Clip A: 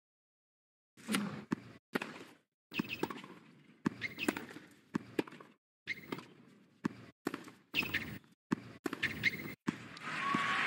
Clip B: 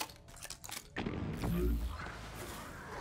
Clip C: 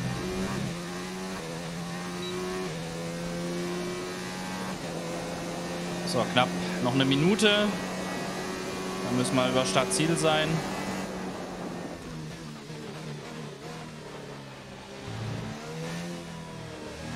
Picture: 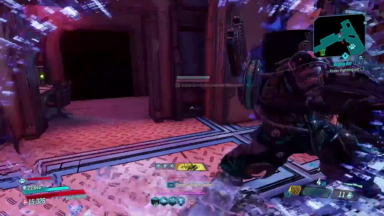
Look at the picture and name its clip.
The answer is B